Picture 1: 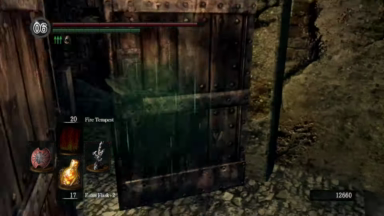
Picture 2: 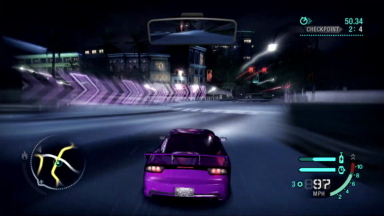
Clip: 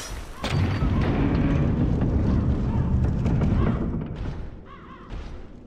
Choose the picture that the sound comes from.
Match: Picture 1